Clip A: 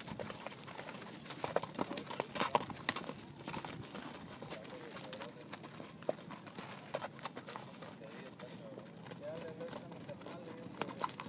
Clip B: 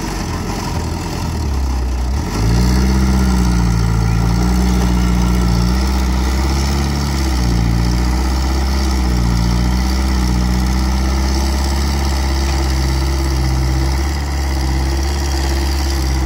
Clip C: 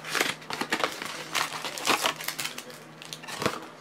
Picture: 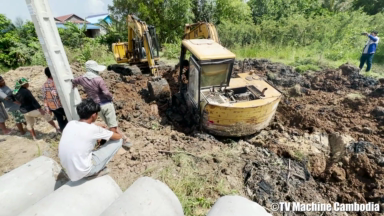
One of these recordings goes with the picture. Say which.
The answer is B